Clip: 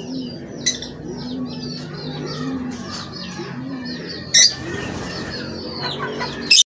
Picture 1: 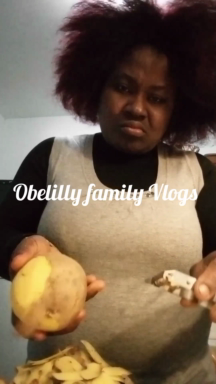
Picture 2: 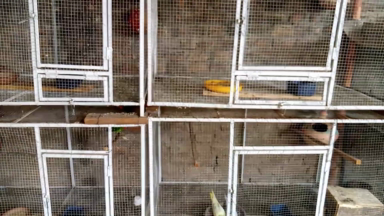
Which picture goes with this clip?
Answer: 2